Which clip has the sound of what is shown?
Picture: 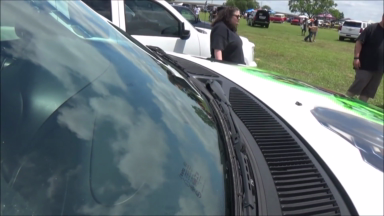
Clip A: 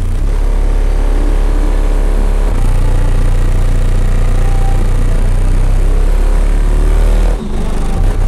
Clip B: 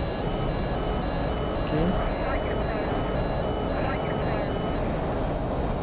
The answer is A